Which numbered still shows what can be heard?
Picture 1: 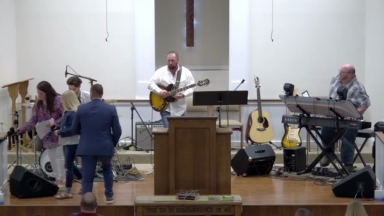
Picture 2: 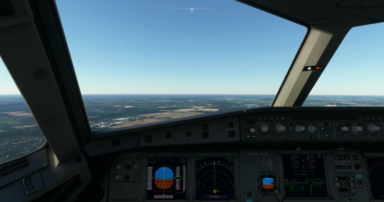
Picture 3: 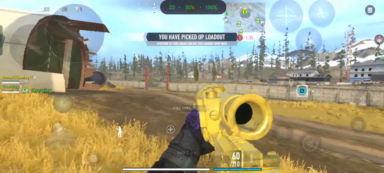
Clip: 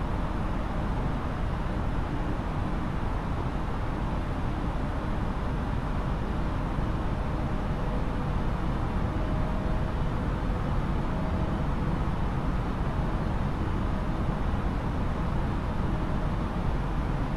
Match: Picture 2